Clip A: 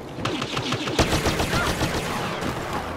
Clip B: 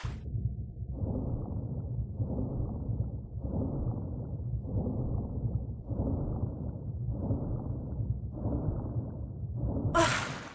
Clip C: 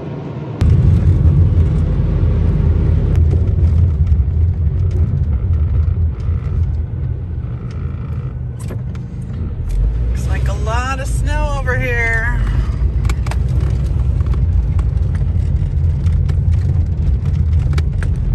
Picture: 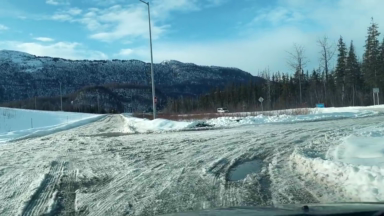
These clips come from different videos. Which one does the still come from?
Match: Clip C